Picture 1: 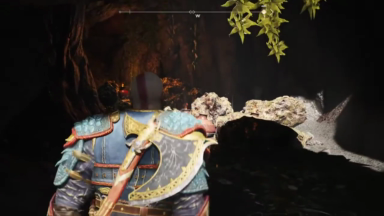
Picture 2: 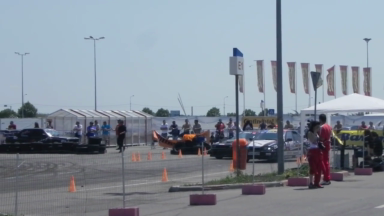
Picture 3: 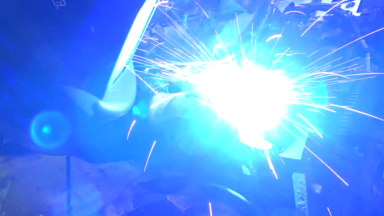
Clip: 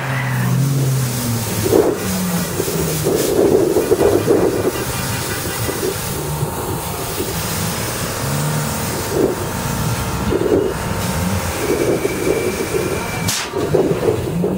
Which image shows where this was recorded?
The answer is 2